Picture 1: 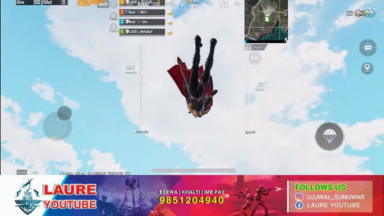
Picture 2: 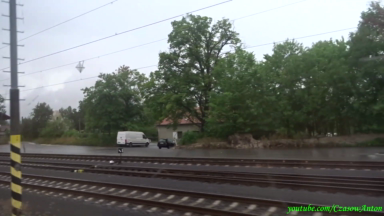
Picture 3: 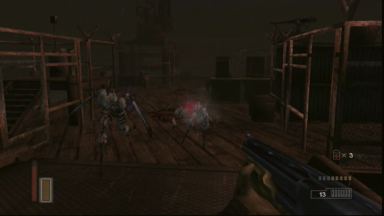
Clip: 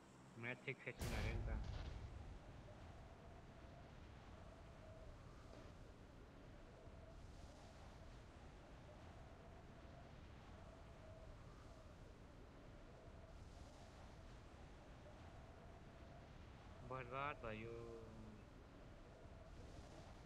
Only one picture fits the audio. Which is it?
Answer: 1